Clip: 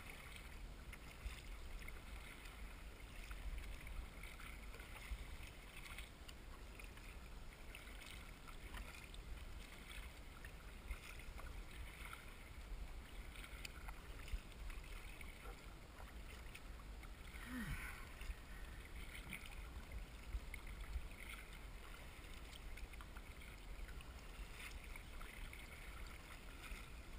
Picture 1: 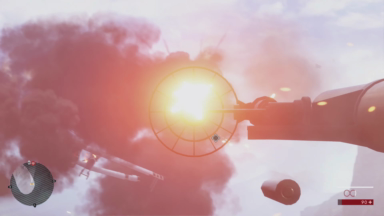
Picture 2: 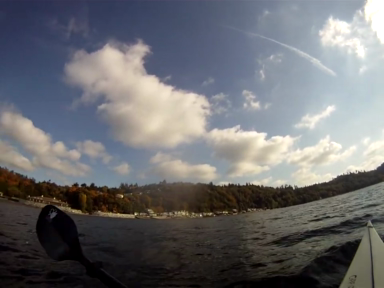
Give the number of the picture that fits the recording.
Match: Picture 2